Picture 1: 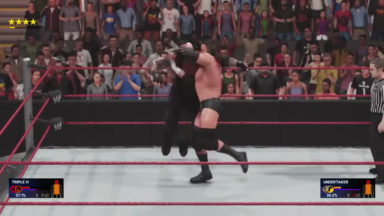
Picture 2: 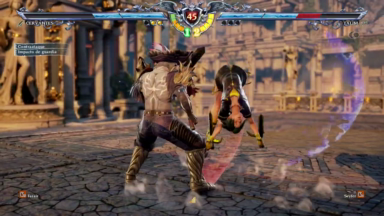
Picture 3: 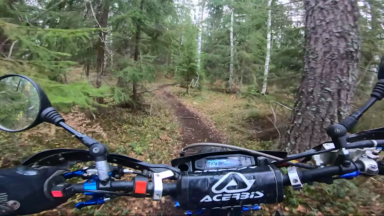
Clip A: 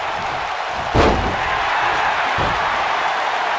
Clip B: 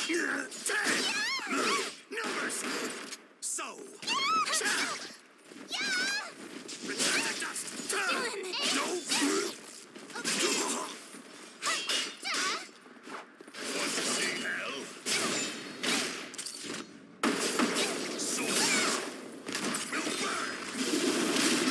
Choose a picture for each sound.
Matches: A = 1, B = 2